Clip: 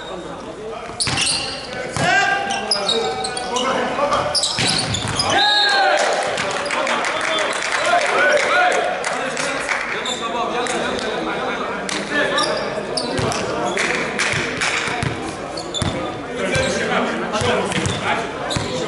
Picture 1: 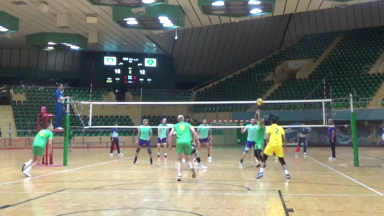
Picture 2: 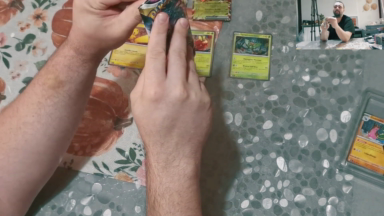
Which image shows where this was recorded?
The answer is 1